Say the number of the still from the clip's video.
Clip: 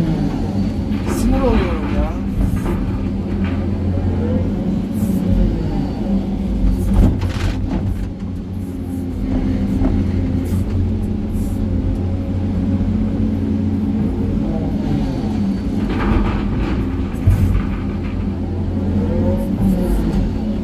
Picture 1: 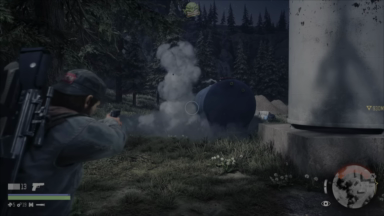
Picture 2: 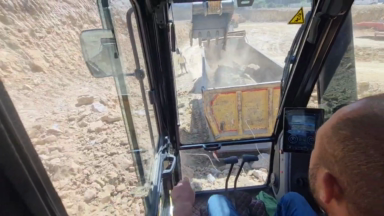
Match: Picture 2